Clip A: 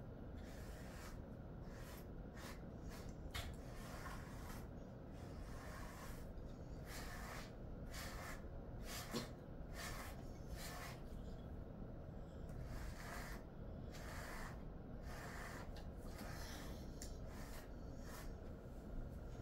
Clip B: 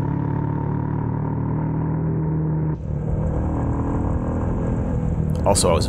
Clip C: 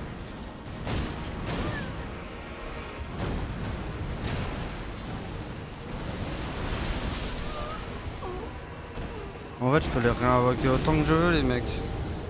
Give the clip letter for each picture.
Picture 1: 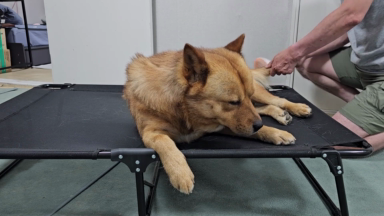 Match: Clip A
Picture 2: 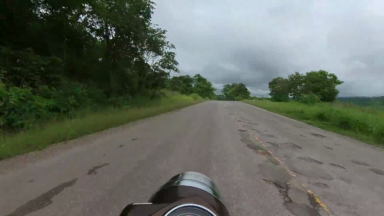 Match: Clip B